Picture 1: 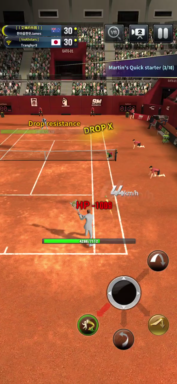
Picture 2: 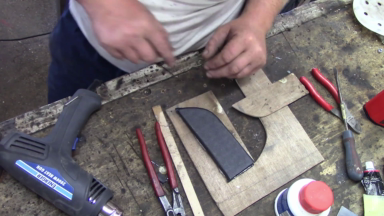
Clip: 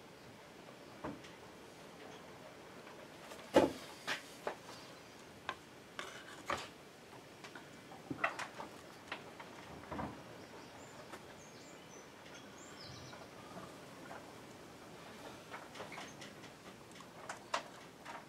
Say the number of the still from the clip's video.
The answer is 2